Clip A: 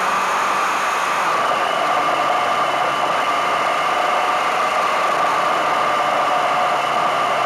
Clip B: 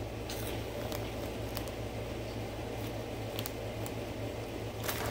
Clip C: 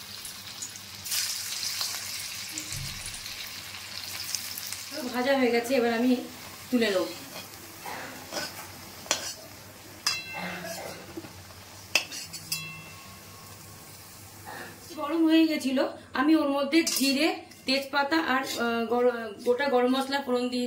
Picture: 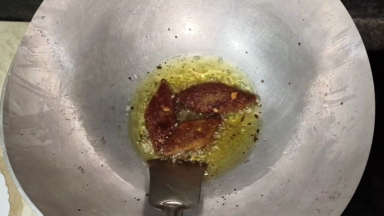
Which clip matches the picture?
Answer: C